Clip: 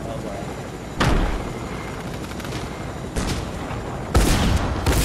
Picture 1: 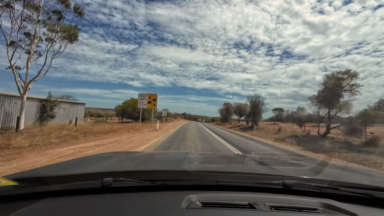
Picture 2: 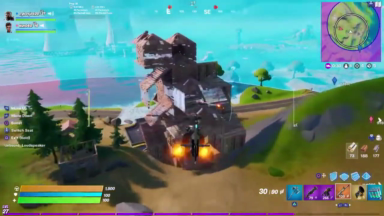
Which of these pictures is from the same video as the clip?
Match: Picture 2